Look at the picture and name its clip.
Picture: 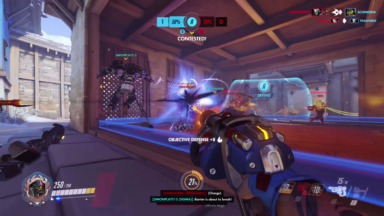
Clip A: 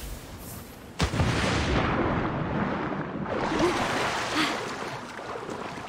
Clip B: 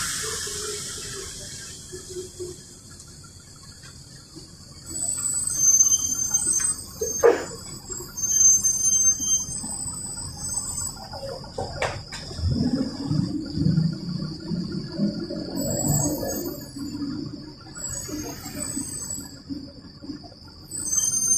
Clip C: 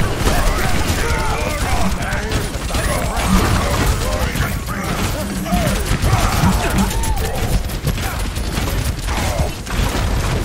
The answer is C